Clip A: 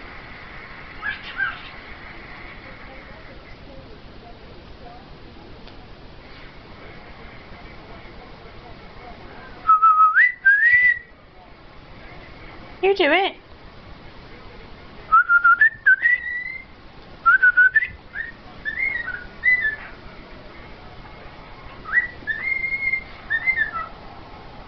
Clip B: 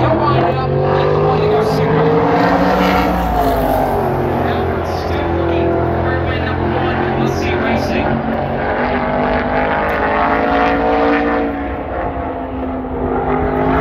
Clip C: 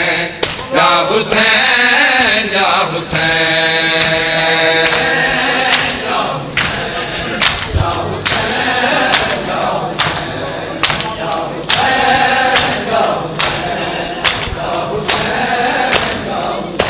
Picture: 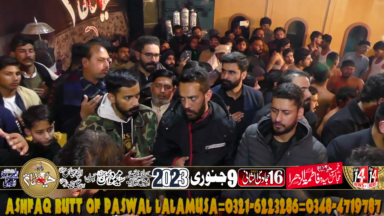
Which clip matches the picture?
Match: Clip C